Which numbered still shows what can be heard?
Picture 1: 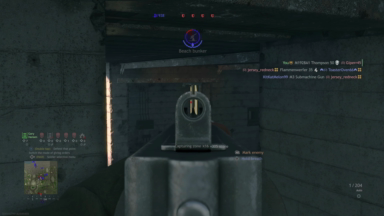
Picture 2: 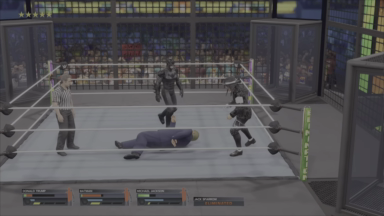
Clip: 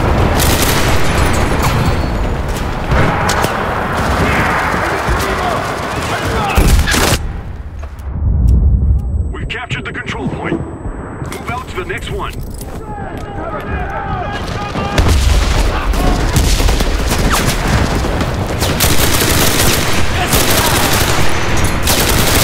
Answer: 1